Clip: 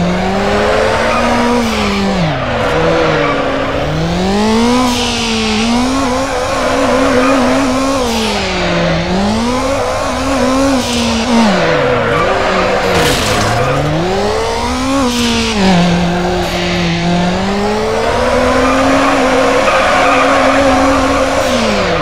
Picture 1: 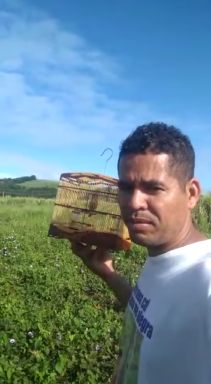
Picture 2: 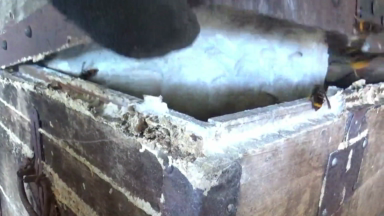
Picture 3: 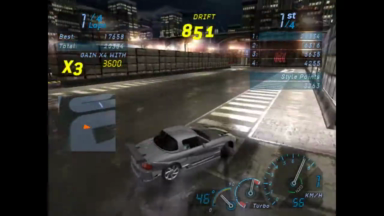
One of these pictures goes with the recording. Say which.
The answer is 3